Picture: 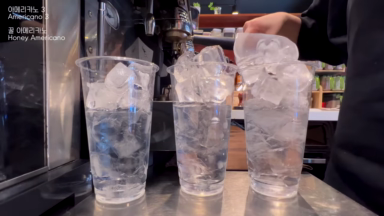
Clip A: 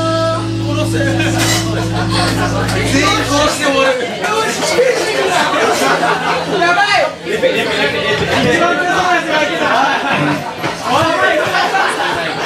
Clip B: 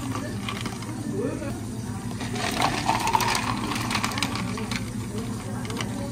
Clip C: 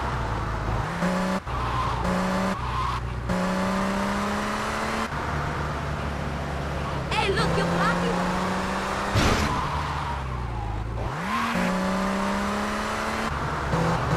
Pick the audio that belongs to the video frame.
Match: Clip B